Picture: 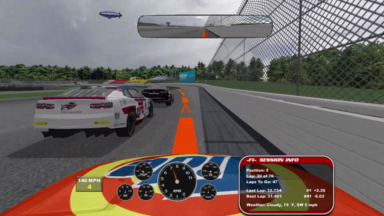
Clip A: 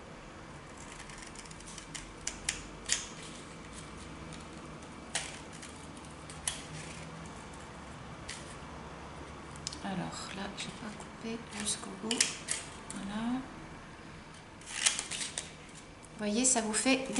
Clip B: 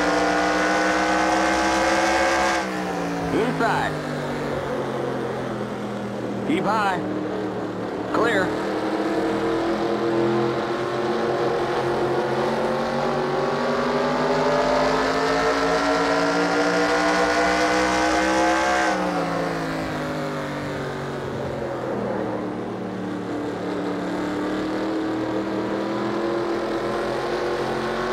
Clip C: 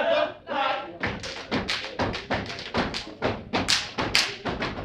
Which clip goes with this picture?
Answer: B